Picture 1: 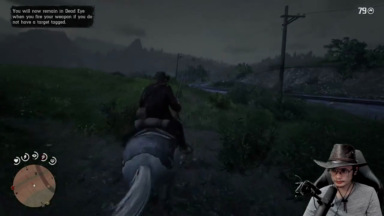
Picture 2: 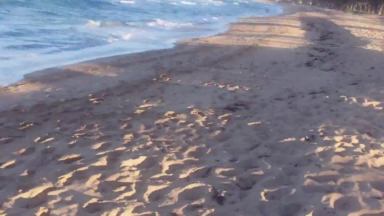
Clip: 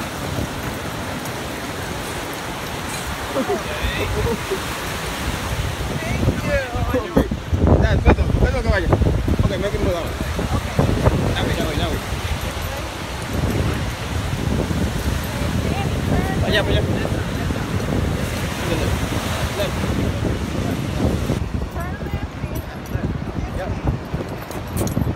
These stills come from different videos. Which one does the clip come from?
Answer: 2